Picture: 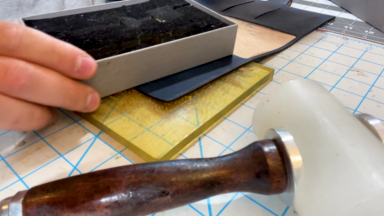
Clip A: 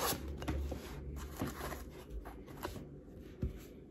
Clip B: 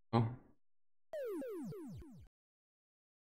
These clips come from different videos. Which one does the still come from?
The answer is A